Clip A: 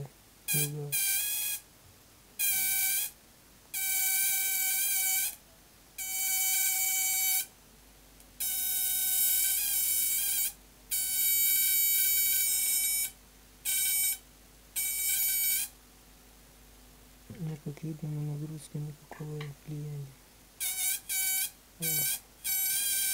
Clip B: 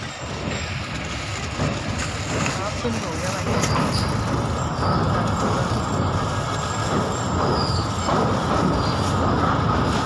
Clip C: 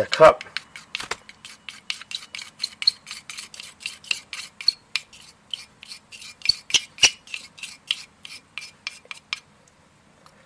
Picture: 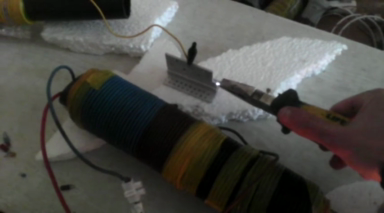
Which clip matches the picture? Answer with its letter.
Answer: A